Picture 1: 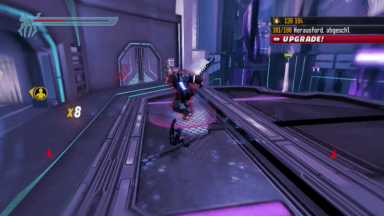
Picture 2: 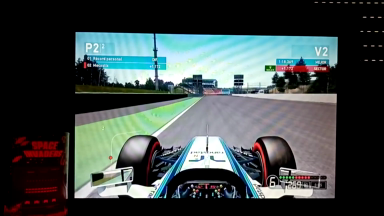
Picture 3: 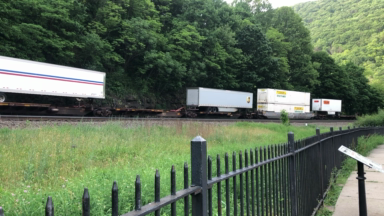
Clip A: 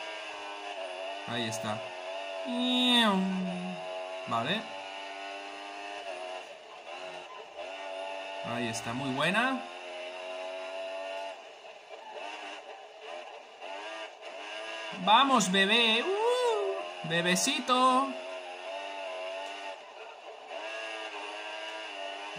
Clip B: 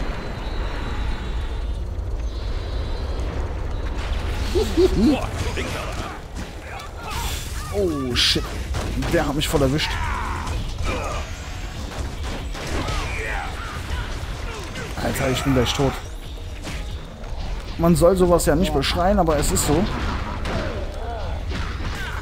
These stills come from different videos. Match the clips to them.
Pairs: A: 2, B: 1